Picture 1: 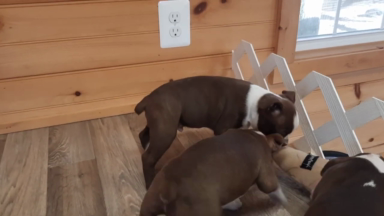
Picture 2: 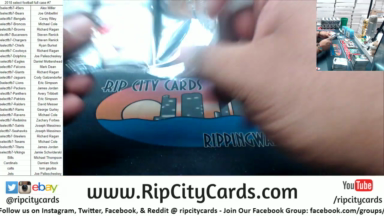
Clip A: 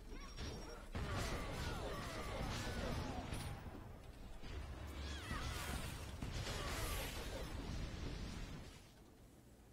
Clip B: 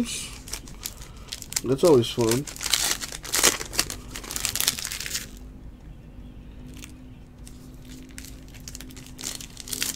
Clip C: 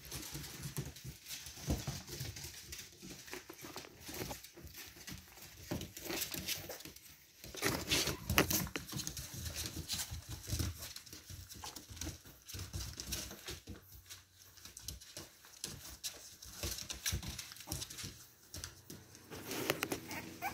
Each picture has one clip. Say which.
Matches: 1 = C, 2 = B